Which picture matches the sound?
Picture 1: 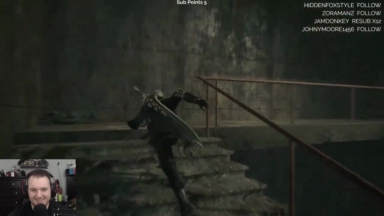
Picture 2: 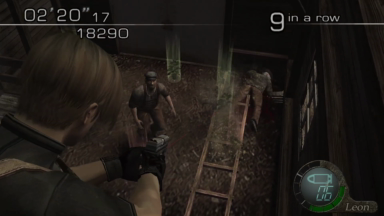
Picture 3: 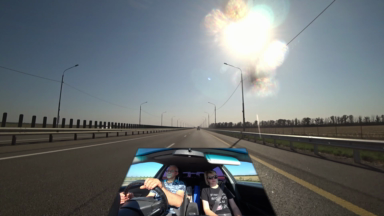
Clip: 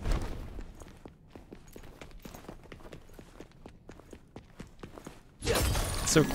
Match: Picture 1